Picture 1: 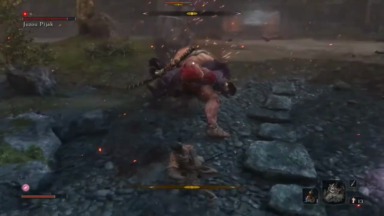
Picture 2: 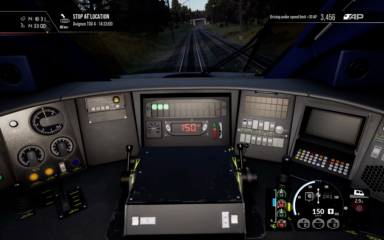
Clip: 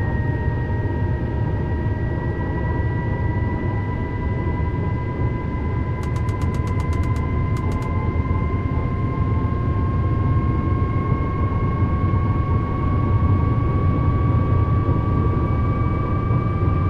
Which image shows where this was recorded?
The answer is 2